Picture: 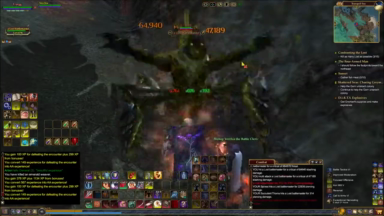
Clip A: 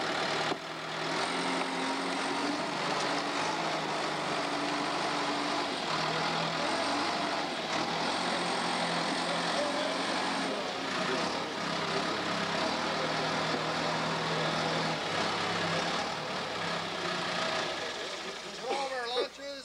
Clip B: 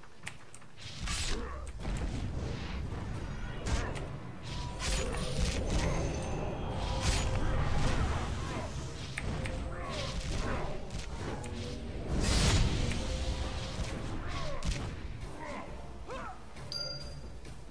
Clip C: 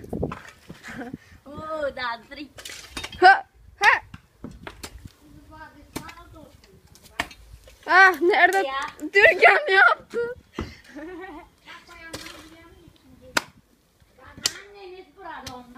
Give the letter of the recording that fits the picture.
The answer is B